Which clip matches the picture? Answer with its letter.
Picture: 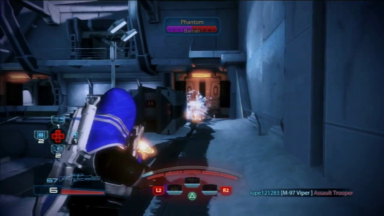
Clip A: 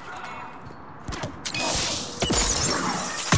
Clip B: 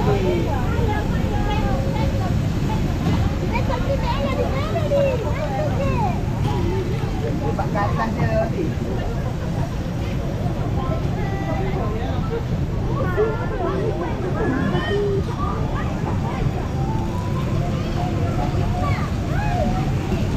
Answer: A